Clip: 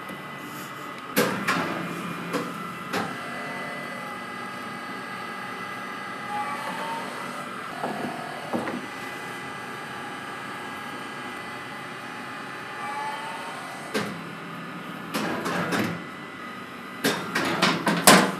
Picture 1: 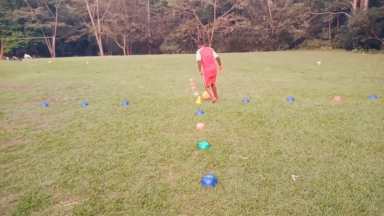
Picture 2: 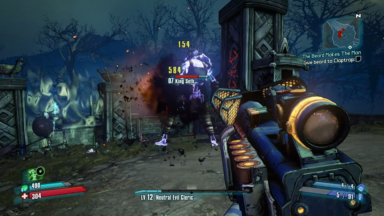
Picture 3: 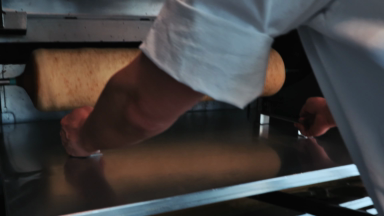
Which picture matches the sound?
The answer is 3